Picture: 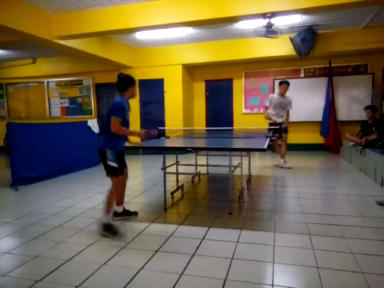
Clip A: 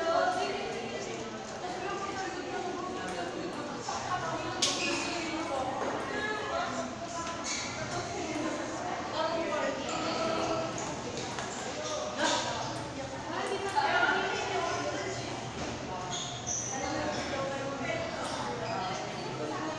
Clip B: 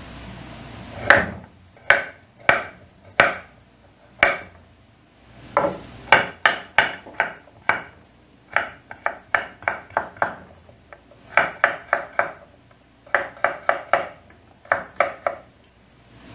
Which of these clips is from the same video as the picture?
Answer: A